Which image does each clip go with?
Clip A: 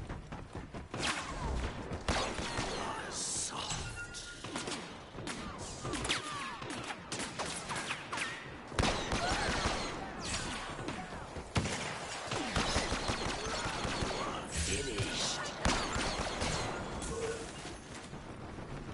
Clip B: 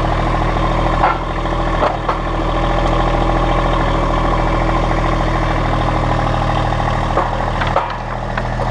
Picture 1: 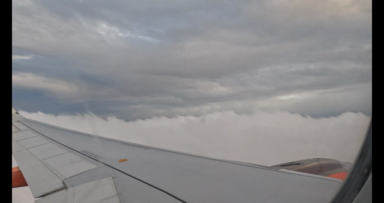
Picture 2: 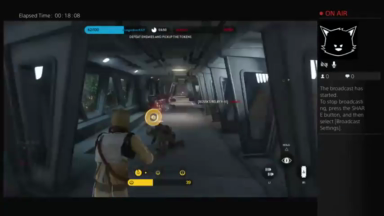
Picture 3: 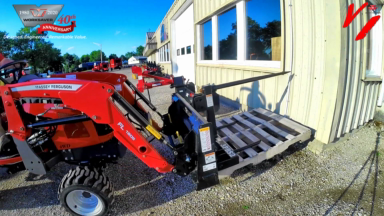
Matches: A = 2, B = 3